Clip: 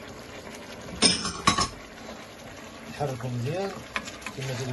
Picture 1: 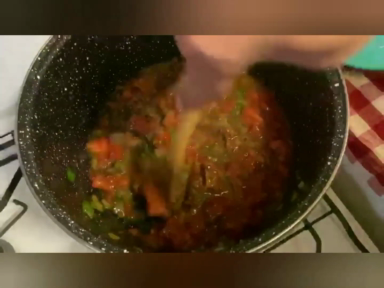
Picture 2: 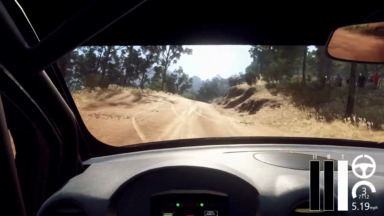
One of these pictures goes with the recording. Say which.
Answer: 1